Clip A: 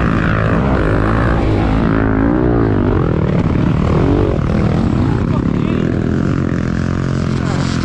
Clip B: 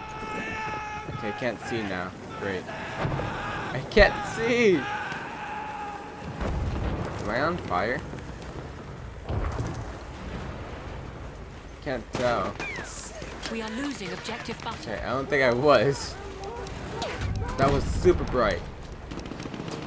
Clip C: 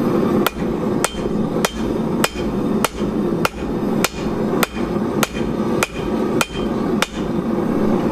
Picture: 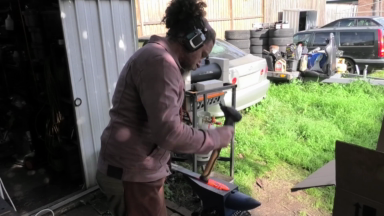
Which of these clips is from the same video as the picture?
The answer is C